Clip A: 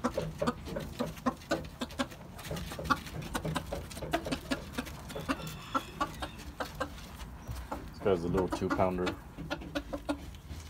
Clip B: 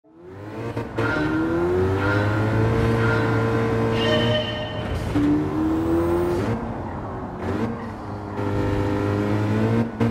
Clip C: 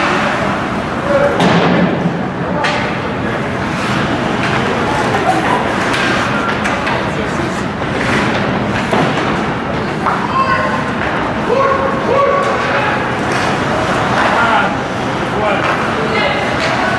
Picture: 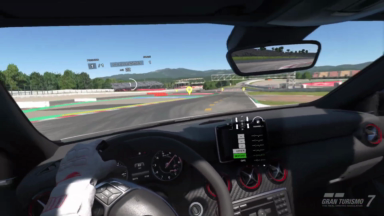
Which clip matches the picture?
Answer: B